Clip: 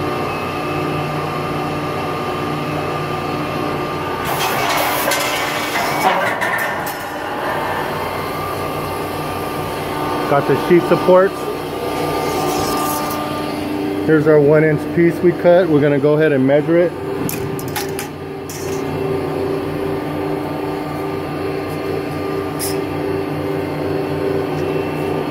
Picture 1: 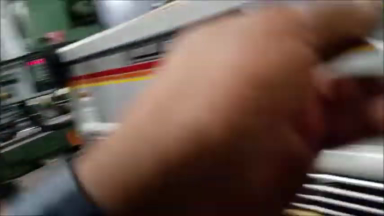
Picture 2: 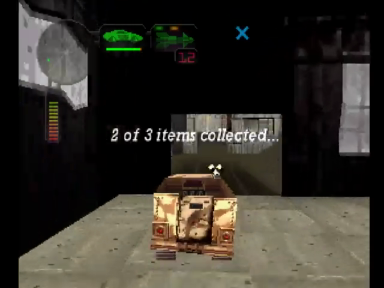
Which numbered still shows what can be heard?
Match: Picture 1